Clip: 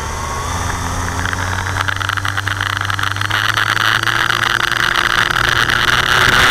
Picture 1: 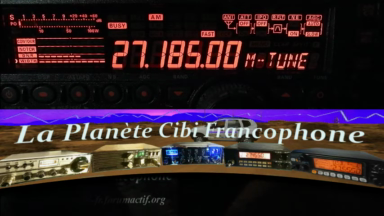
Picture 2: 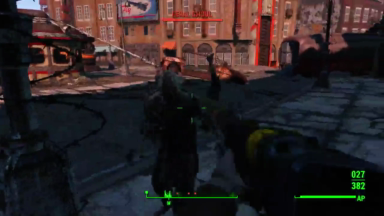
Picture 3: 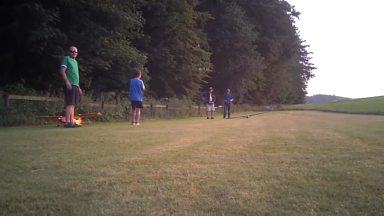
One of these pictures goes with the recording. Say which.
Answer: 3